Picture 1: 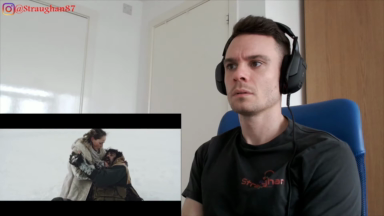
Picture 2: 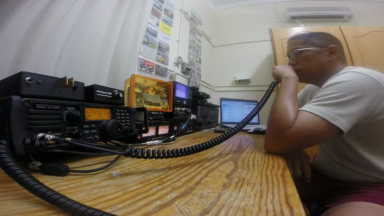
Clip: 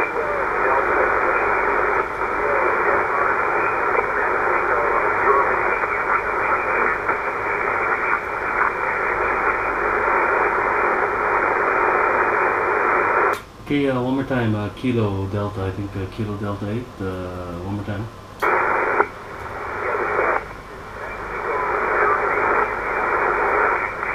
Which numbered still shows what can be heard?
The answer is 2